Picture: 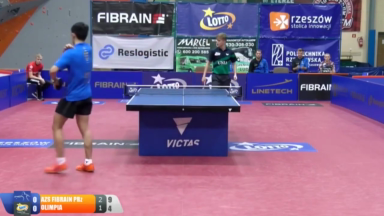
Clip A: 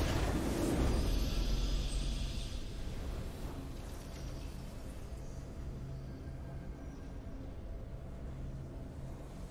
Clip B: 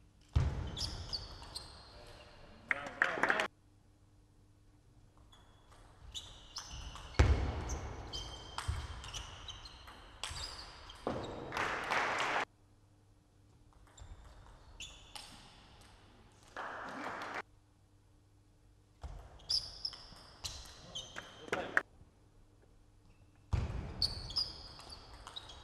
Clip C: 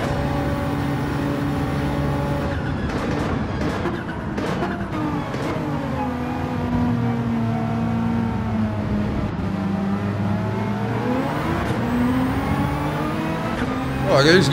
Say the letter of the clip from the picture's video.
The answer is B